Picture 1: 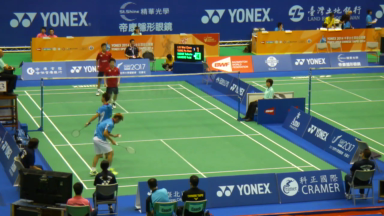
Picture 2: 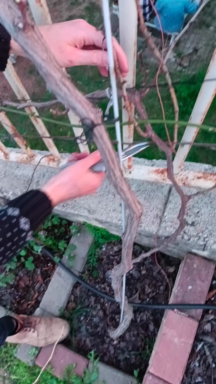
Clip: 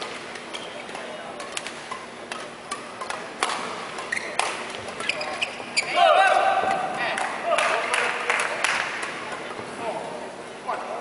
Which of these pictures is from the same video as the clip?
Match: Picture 1